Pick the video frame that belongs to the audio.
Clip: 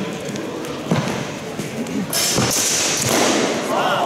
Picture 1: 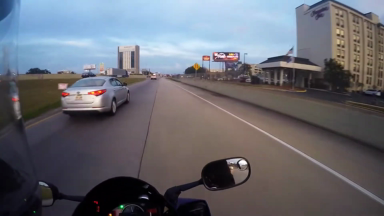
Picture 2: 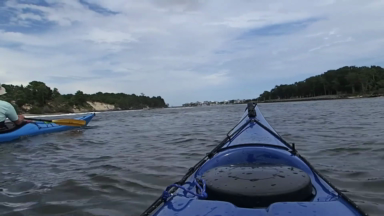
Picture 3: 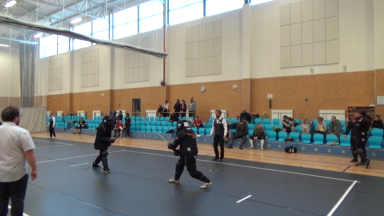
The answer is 3